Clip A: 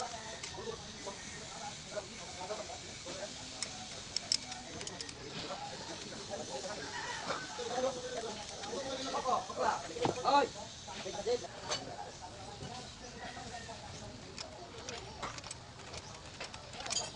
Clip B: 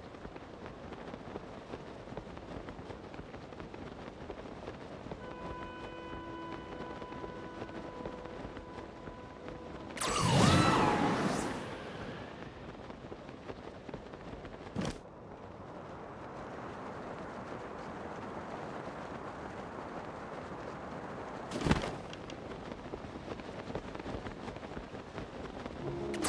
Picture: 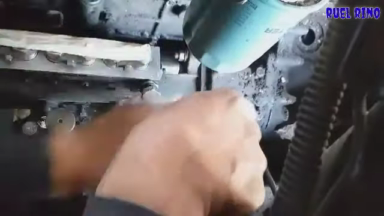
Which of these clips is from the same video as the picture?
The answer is A